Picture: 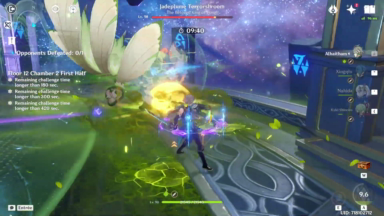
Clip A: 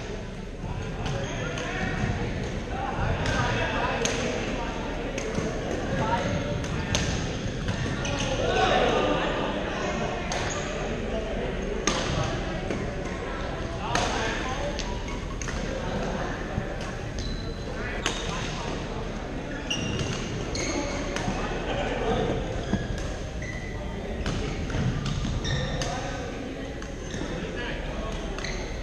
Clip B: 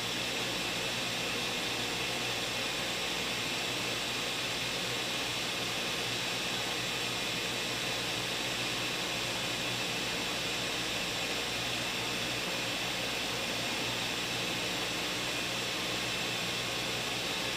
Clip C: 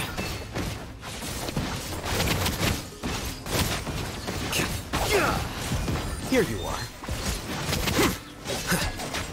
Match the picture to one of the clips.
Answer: C